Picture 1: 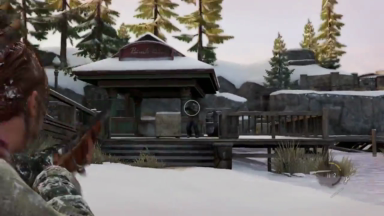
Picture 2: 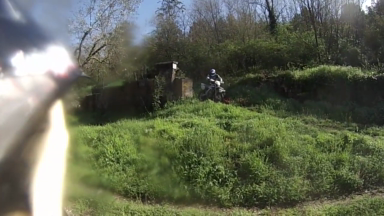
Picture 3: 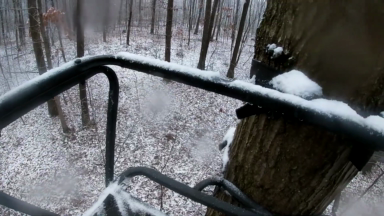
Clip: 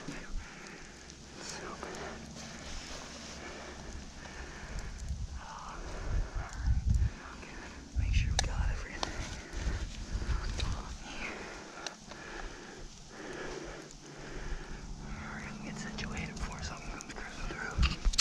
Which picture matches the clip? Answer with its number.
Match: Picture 3